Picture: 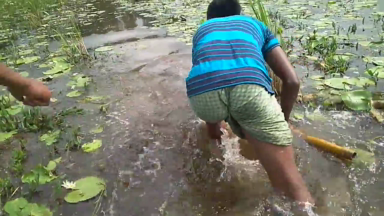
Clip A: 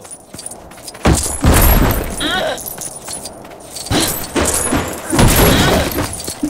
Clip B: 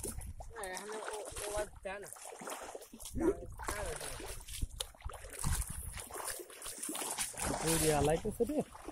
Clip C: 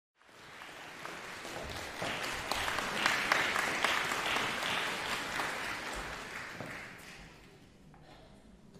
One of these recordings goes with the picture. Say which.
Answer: B